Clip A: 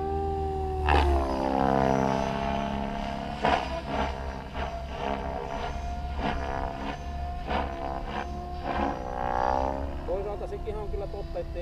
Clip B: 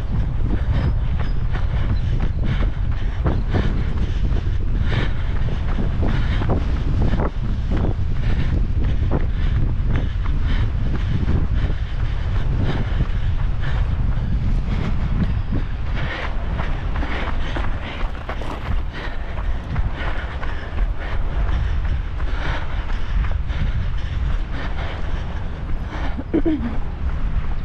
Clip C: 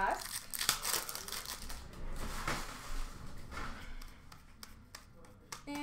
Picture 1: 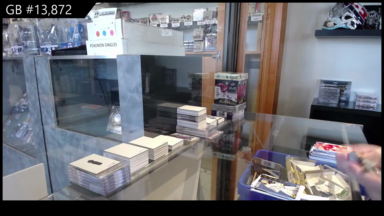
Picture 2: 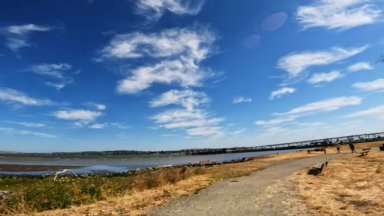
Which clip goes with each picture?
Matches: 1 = C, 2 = B